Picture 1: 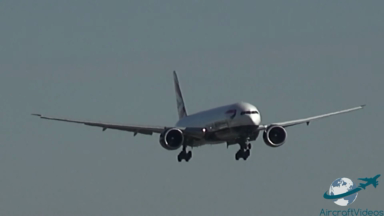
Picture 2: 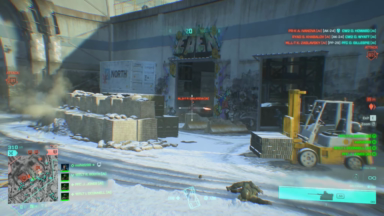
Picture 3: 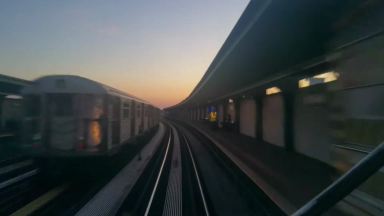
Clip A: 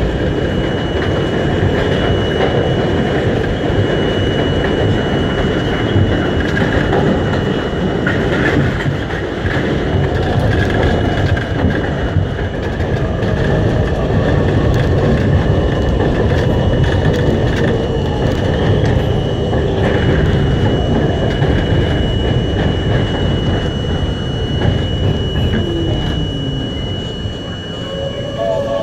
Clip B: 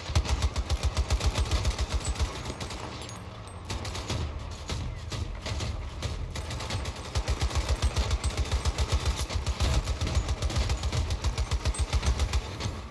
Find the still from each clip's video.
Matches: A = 3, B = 2